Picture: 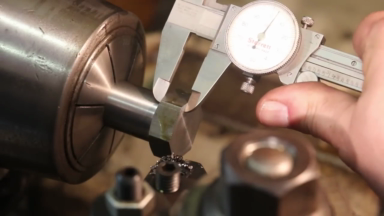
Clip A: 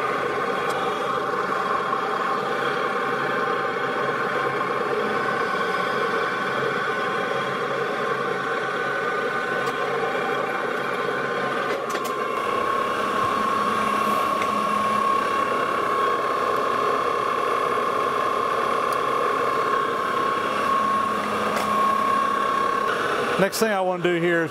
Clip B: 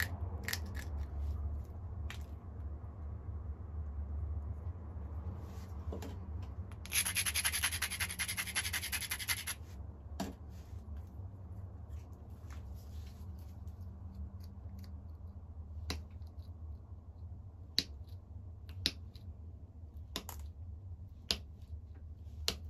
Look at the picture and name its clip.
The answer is A